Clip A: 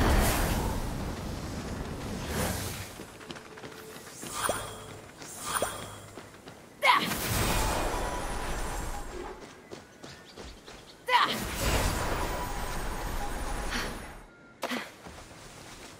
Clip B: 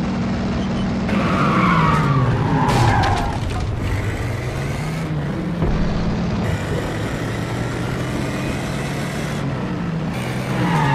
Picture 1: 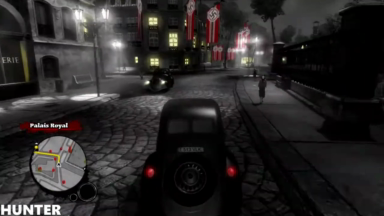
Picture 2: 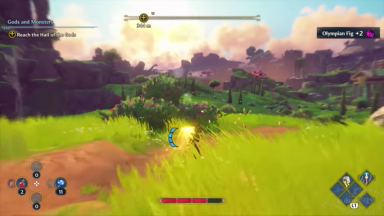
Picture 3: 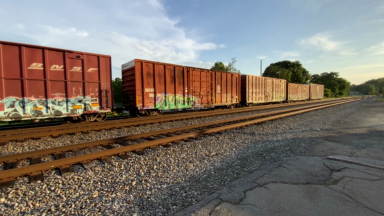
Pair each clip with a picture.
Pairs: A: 2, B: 1